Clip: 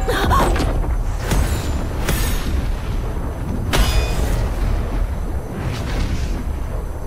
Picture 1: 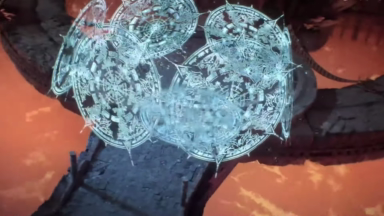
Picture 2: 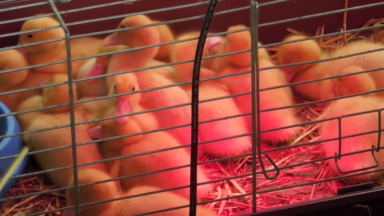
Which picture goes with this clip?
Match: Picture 1